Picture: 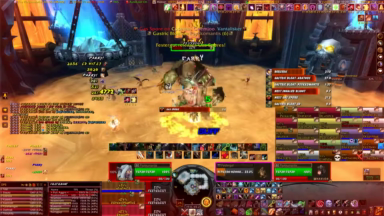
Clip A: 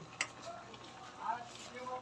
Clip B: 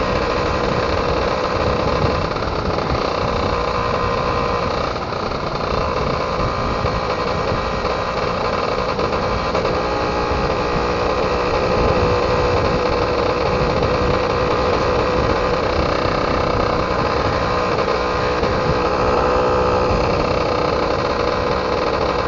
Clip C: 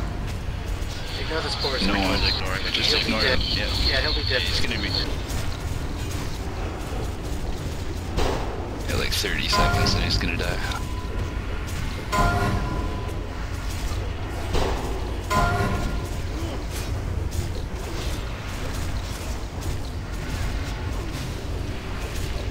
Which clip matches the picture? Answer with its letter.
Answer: C